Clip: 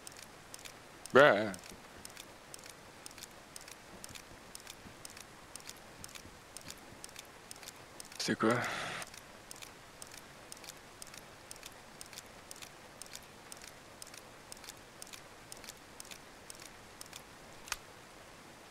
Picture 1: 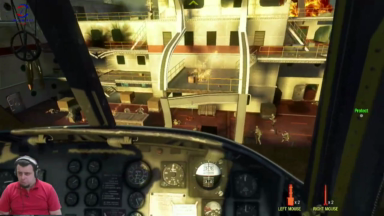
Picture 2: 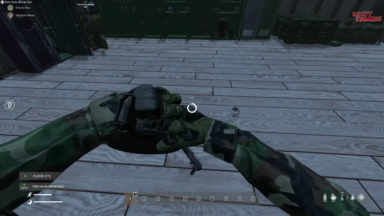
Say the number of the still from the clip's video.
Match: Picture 2